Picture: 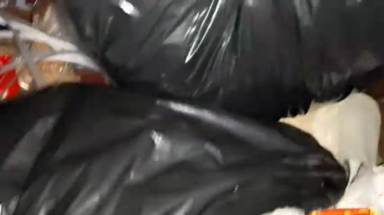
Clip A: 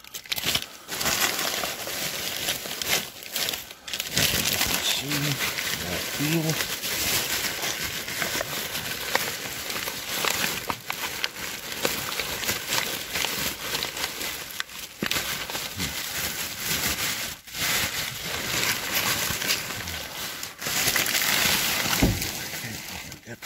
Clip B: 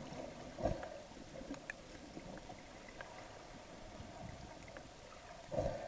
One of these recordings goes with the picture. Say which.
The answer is A